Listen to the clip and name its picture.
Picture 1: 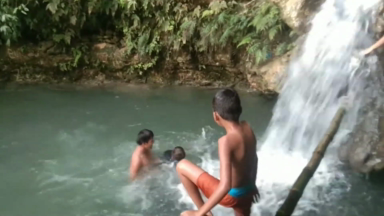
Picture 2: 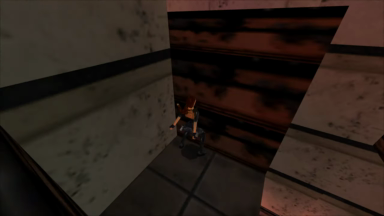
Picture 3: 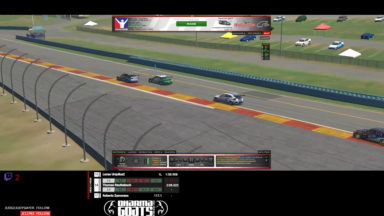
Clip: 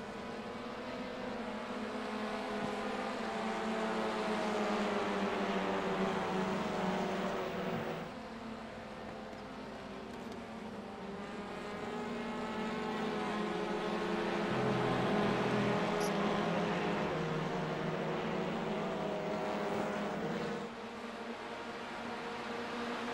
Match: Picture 3